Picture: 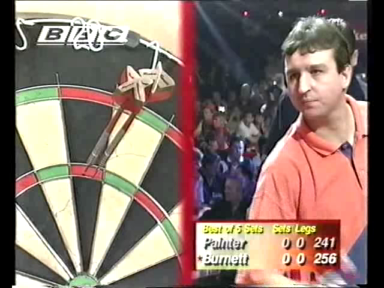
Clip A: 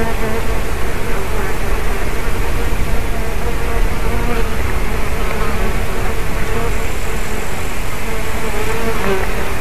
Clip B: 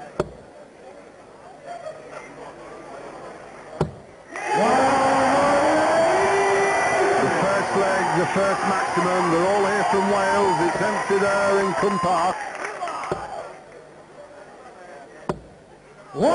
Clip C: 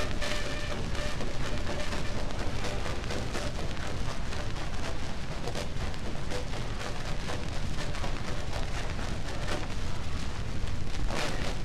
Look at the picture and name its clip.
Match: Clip B